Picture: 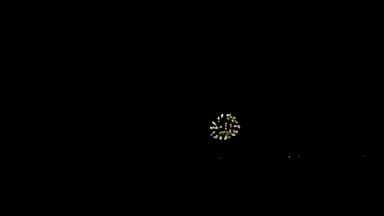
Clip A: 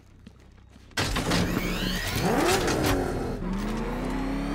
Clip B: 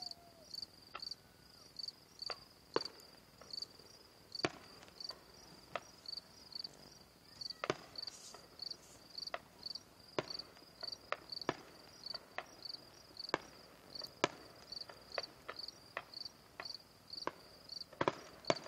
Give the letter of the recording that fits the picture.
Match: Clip B